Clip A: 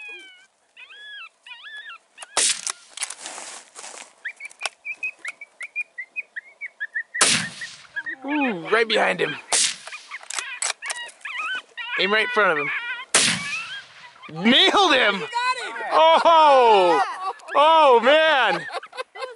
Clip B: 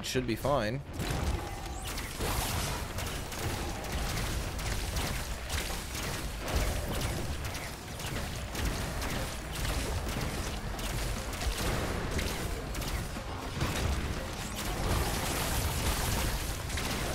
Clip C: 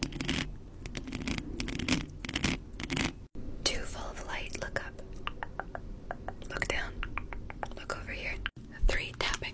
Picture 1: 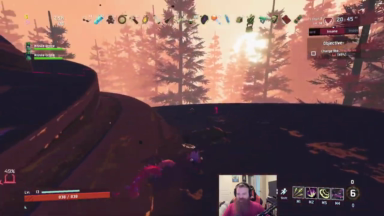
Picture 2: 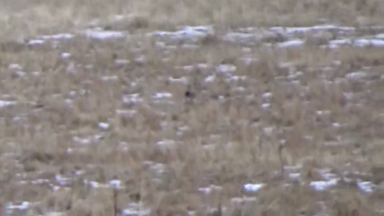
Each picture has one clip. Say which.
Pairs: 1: B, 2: A